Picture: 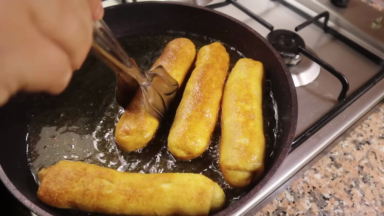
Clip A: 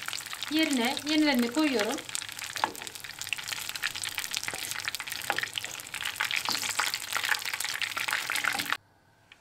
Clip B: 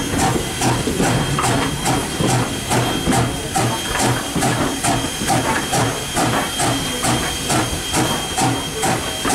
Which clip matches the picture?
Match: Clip A